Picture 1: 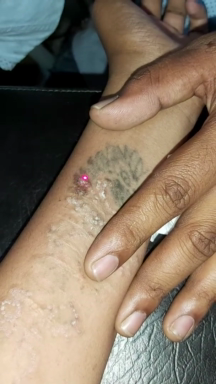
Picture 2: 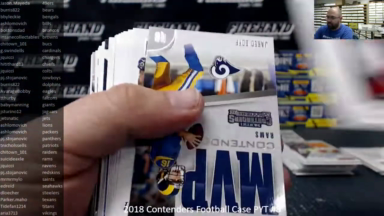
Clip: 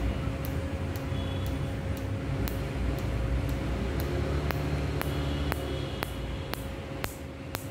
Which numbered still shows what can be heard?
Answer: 1